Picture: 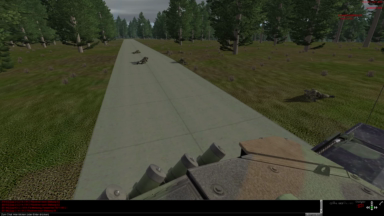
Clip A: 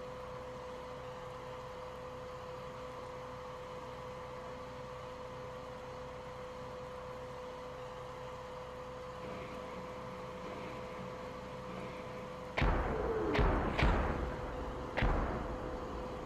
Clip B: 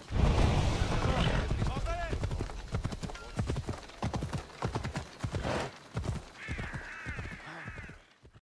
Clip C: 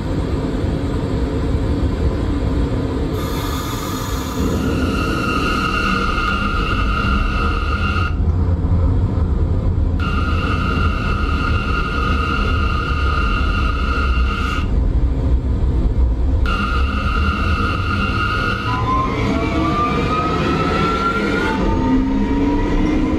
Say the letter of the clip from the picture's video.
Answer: A